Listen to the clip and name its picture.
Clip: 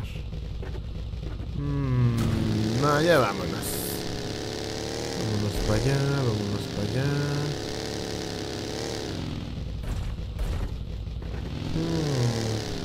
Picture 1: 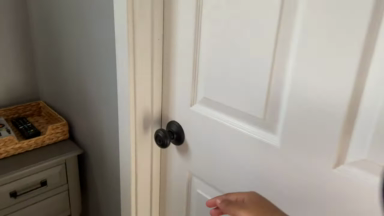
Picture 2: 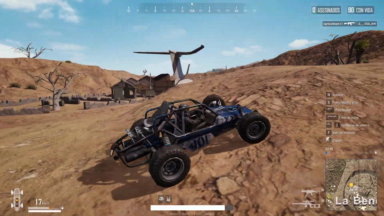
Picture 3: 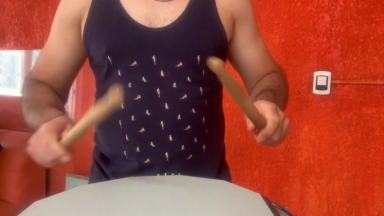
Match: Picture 2